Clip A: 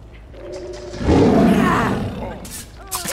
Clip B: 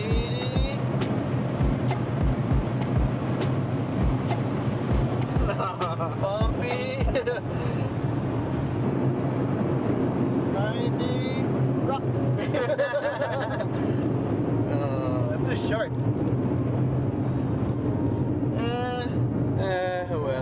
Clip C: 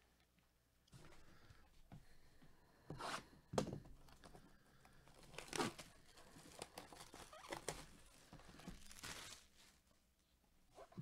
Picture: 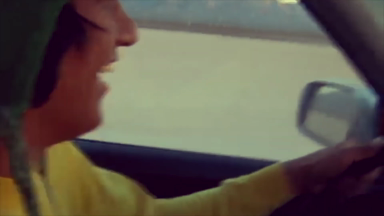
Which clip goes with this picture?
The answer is B